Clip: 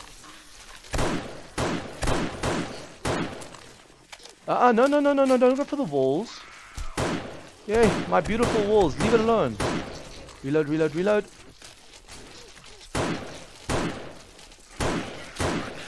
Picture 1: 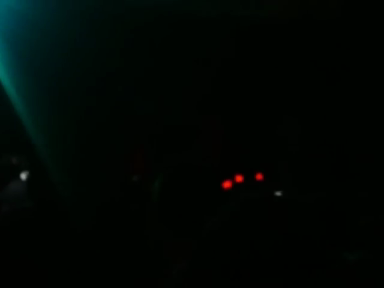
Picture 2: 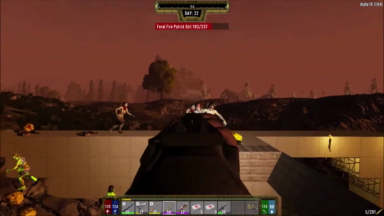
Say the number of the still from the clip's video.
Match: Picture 2